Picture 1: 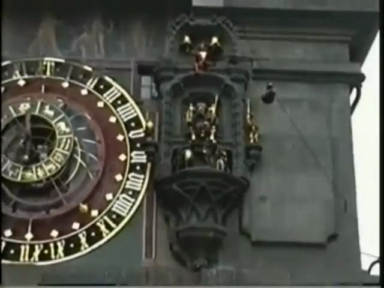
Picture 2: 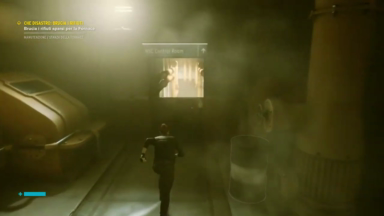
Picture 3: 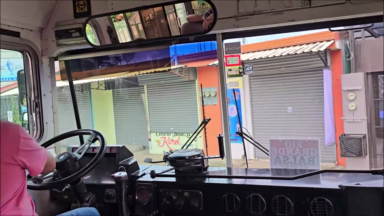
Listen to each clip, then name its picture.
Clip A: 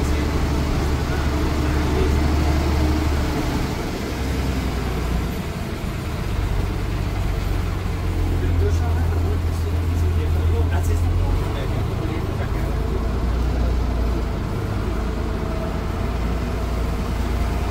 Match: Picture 3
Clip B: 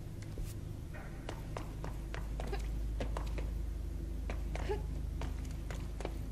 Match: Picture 2